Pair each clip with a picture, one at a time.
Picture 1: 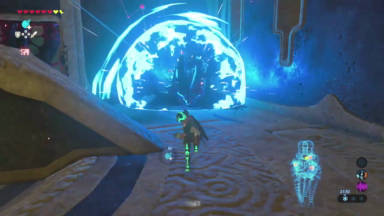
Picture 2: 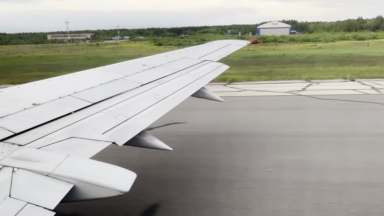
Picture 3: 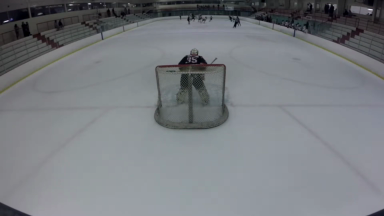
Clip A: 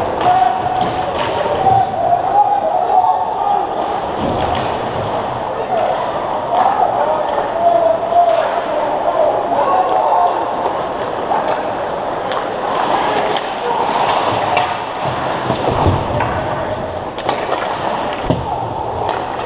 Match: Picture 3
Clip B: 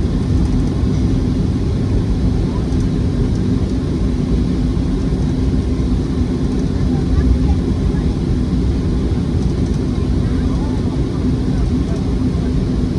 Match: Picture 2